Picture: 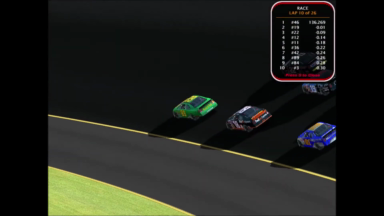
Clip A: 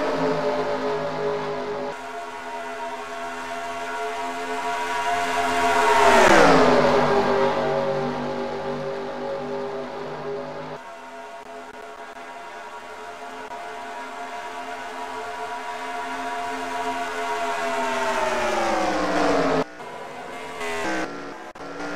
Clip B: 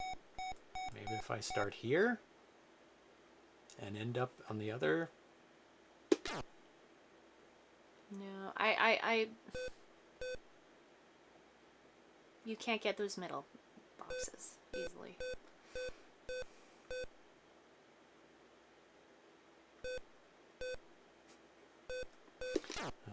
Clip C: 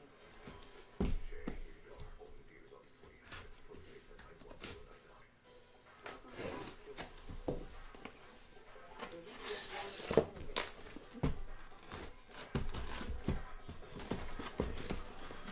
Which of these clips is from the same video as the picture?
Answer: A